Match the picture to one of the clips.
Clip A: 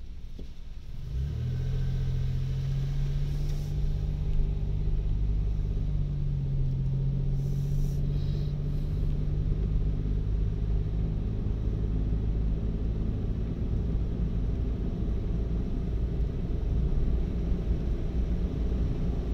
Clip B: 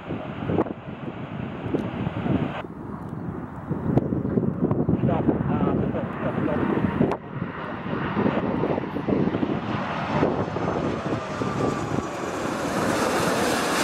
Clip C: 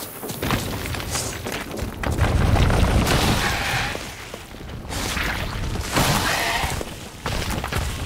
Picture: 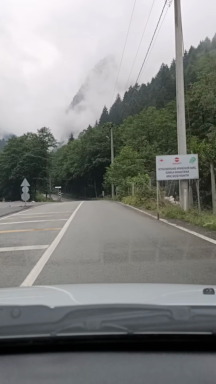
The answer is A